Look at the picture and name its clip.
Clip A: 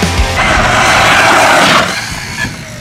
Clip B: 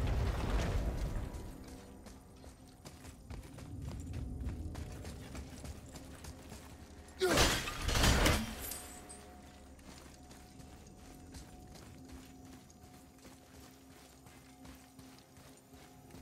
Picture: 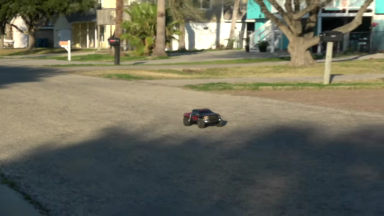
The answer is A